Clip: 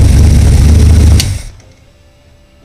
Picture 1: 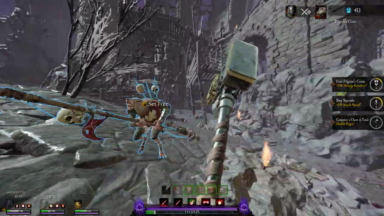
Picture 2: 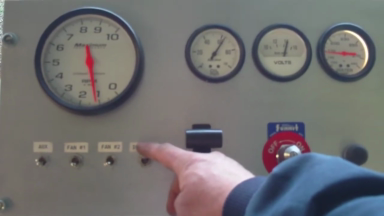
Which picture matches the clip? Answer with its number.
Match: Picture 2